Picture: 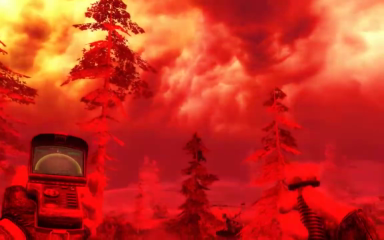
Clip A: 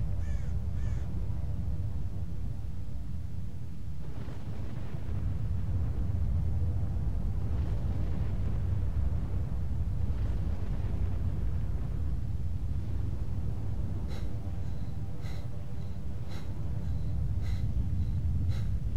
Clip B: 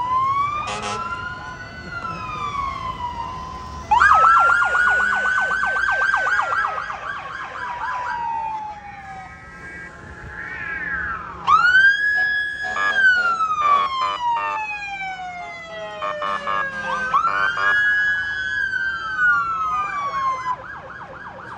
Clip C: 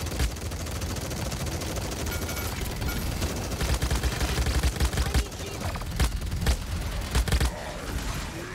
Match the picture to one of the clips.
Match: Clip A